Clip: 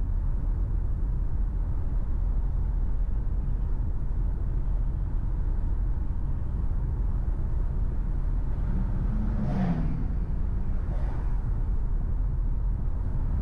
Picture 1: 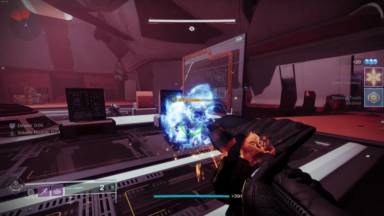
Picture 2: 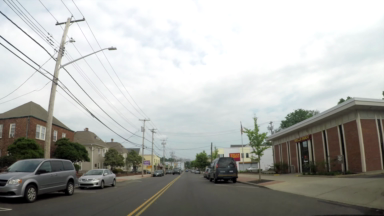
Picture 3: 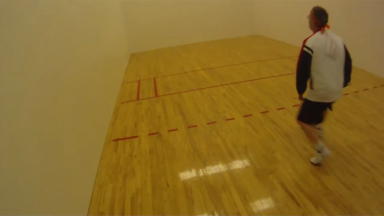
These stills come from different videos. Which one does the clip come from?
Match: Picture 2